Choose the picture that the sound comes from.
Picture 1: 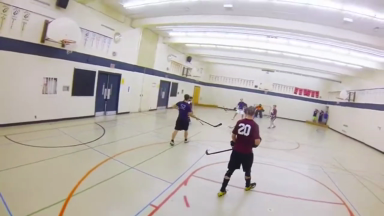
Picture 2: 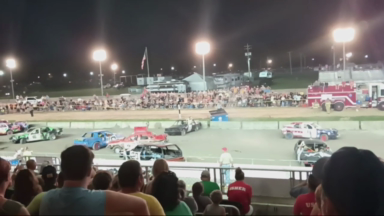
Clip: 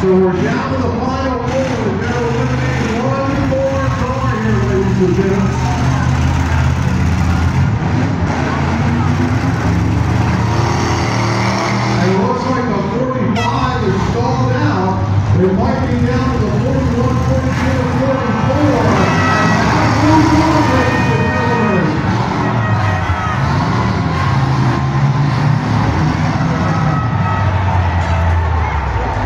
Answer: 2